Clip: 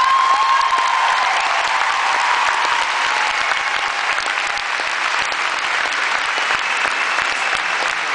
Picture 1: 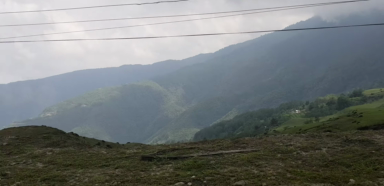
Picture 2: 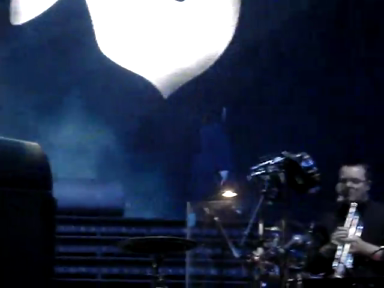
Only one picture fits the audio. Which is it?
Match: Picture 2